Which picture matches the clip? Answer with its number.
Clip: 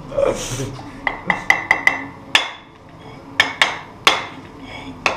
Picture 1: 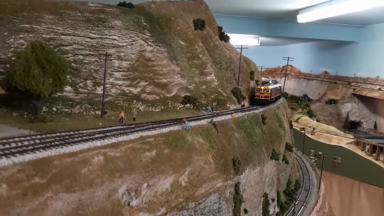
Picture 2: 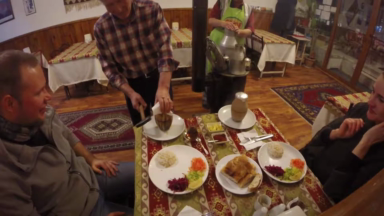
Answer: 2